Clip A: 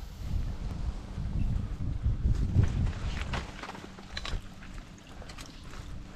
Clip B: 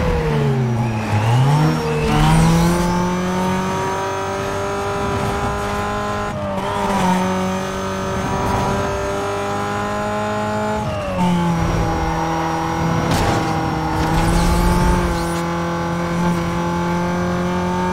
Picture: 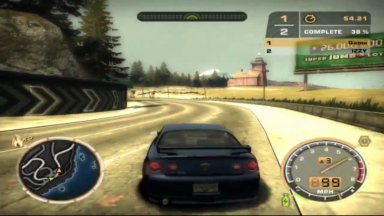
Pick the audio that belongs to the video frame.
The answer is B